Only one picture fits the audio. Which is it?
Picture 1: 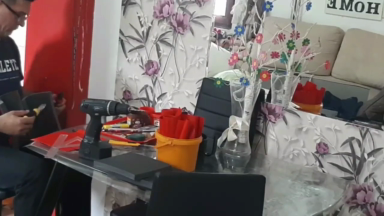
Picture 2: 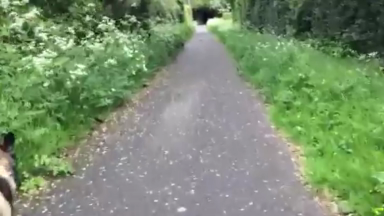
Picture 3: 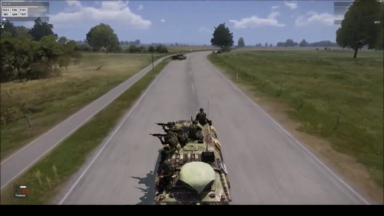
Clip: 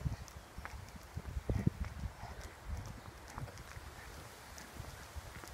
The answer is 2